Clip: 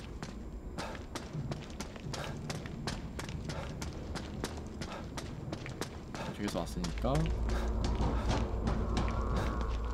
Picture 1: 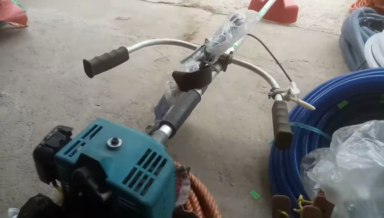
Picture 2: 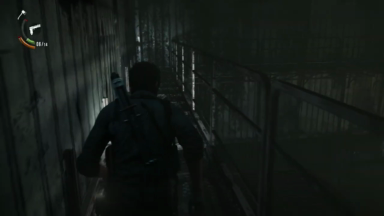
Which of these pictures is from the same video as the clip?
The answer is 2